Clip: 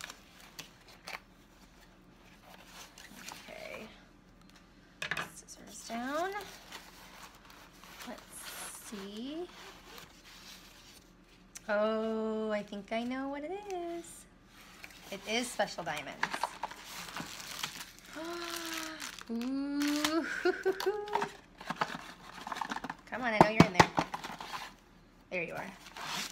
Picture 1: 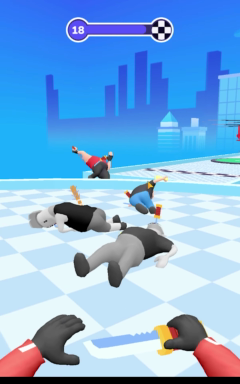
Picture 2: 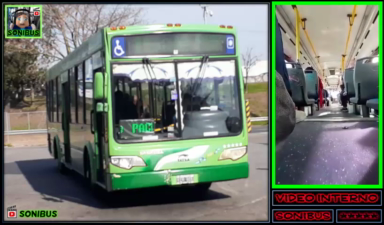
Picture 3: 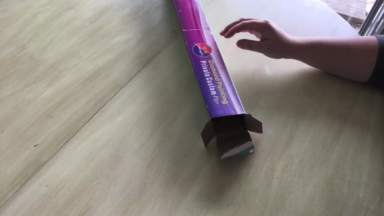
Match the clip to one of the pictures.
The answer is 3